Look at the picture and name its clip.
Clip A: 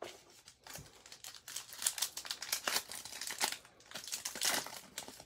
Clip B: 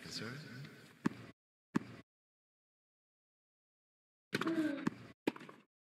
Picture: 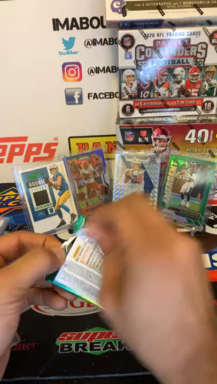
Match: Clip A